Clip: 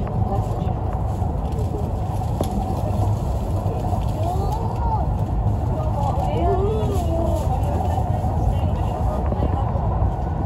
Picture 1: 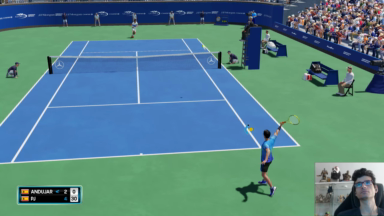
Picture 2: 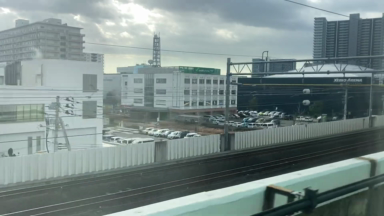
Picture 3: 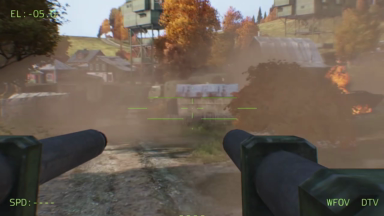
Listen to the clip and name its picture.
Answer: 2